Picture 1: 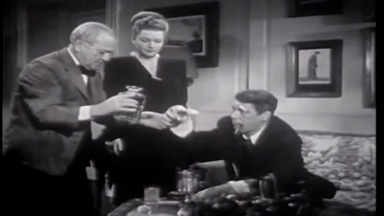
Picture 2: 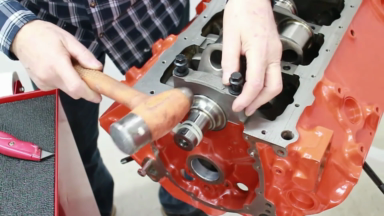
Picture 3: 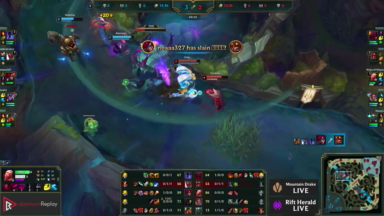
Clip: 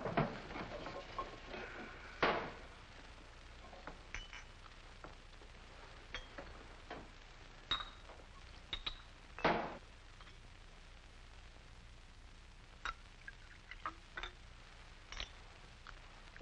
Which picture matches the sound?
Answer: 1